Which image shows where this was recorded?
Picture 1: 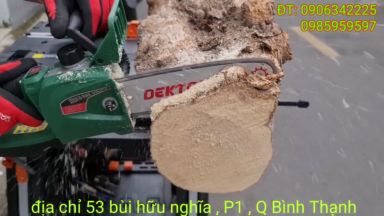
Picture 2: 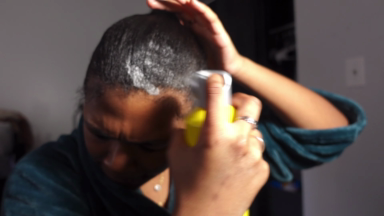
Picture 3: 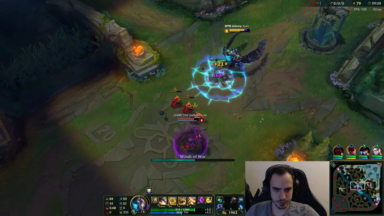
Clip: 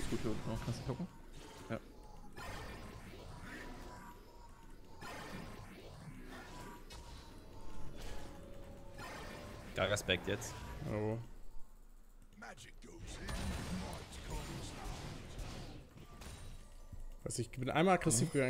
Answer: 3